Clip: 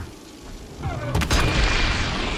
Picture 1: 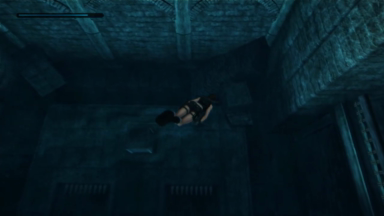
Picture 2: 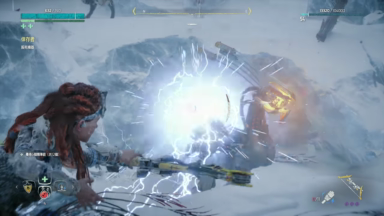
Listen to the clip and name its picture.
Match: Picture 2